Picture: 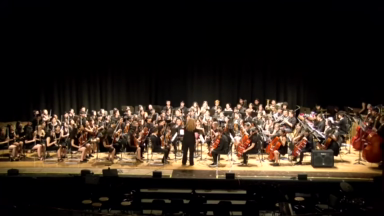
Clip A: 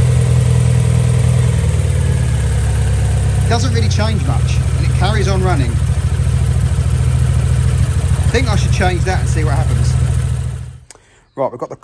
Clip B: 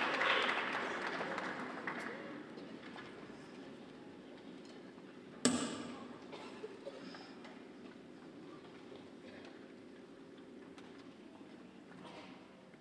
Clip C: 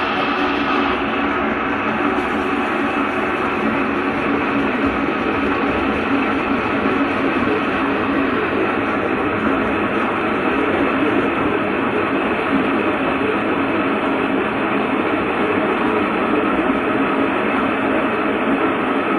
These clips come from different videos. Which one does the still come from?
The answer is B